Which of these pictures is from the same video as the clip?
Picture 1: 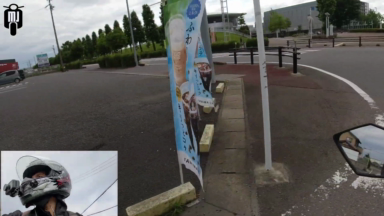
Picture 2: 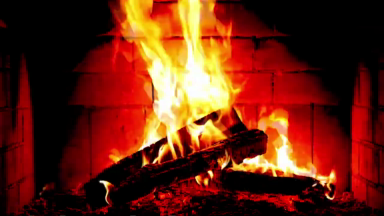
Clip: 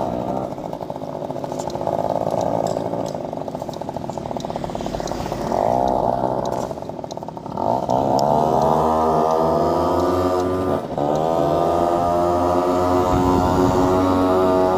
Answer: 1